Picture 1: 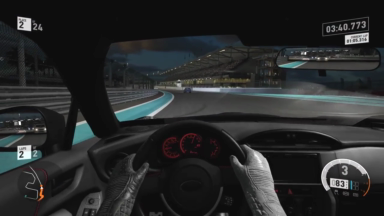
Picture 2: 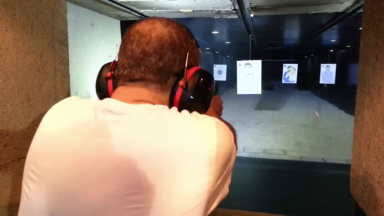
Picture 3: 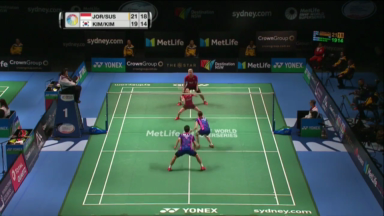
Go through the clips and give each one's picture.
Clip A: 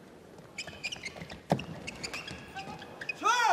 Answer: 3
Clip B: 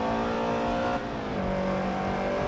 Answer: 1